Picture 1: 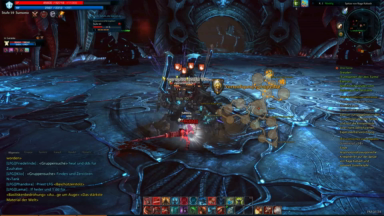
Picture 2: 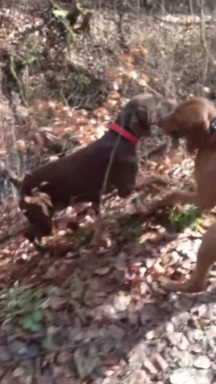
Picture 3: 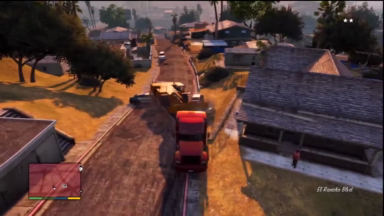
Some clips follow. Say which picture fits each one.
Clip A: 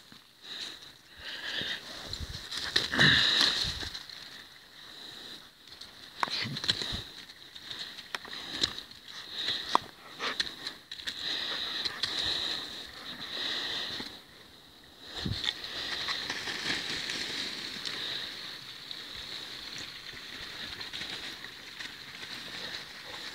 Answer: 2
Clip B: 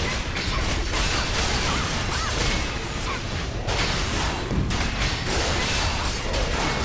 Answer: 1